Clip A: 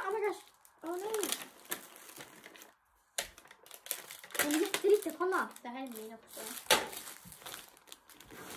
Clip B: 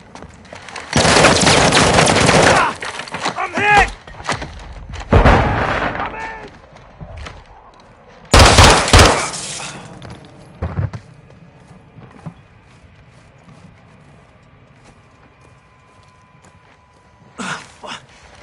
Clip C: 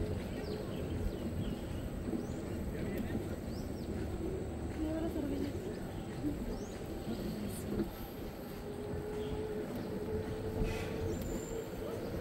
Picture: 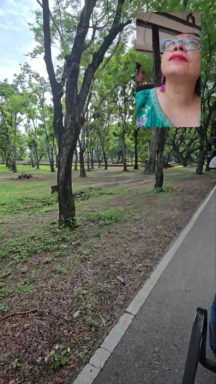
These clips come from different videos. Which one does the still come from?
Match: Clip C